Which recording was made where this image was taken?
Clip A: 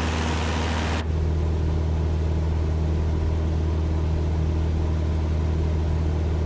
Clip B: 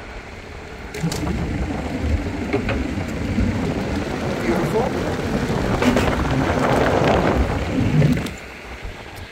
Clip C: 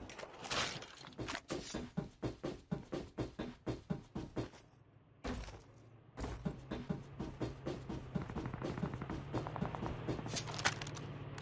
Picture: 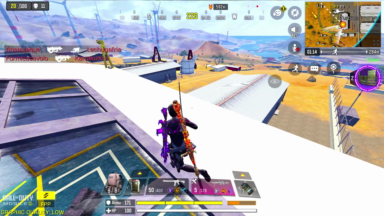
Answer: C